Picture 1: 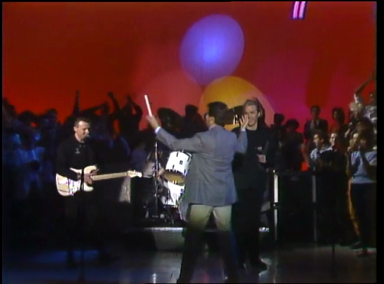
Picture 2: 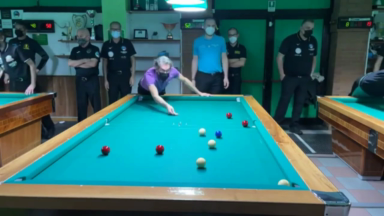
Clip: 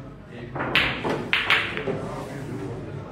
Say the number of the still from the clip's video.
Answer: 2